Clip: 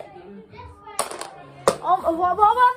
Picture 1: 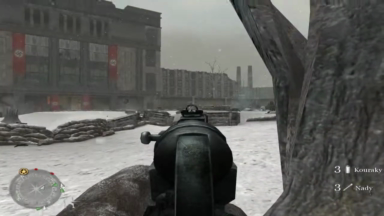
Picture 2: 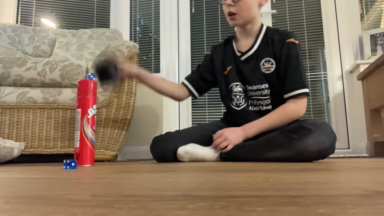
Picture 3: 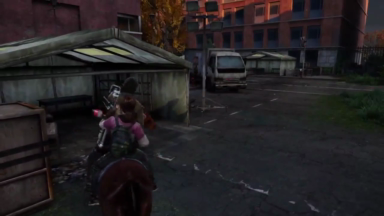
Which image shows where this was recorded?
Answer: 2